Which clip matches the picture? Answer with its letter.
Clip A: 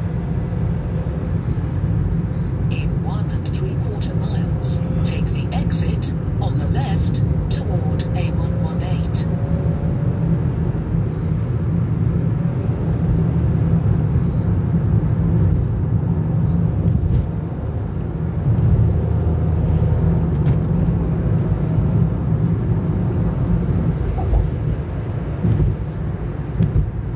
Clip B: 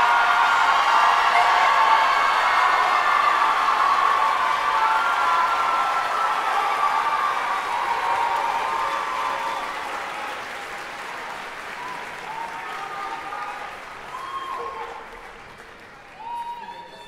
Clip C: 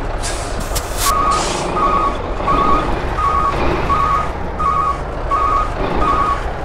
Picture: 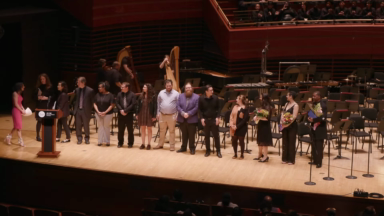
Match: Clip B